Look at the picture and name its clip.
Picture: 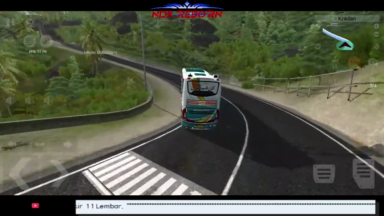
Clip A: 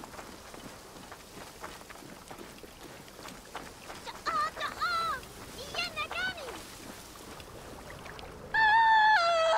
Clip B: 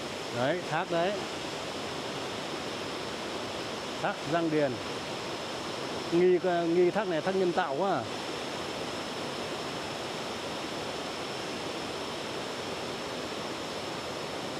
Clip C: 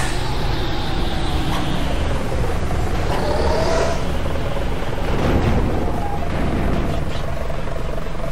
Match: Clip C